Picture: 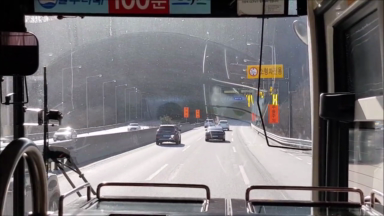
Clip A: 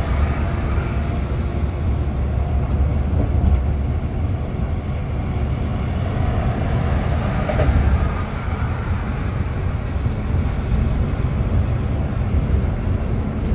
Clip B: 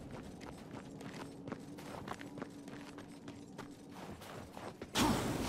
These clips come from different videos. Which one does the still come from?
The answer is A